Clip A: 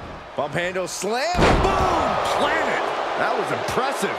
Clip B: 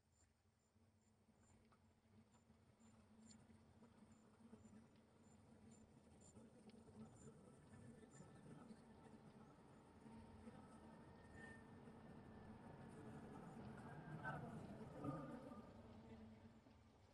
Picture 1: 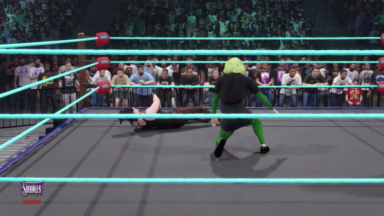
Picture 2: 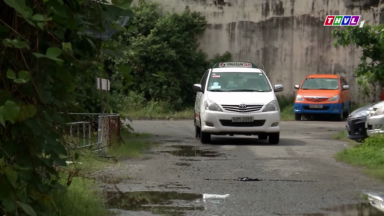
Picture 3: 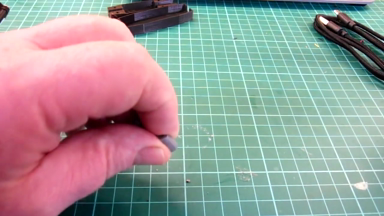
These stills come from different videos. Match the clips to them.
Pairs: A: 1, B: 2